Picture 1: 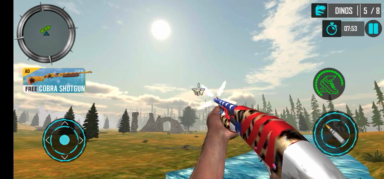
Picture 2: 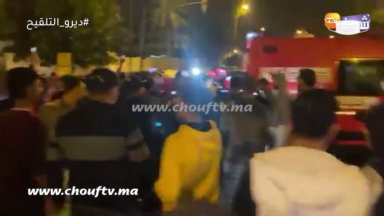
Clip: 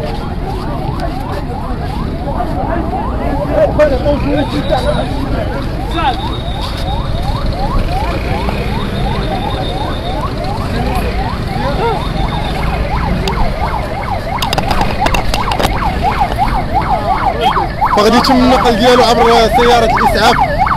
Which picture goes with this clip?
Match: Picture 2